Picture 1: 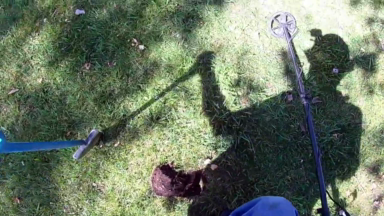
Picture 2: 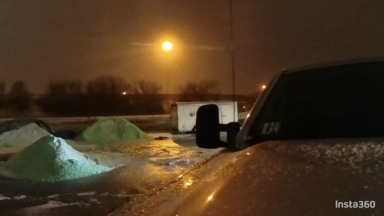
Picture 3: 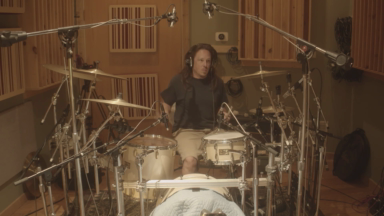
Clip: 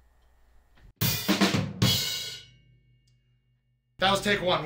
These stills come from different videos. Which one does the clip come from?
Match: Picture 3